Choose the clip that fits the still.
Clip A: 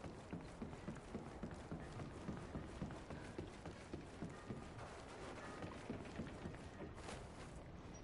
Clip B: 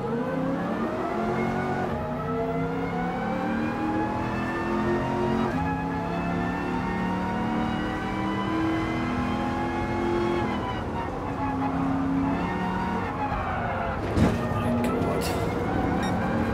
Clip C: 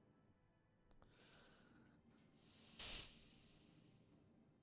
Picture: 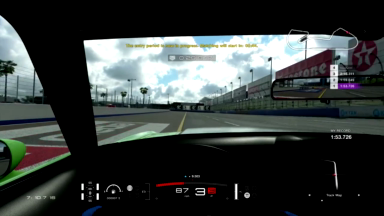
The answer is B